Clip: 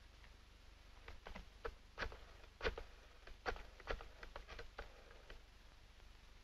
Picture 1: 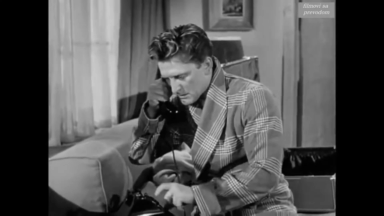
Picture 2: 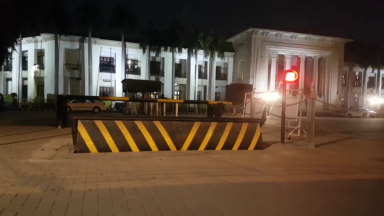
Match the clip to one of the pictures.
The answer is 1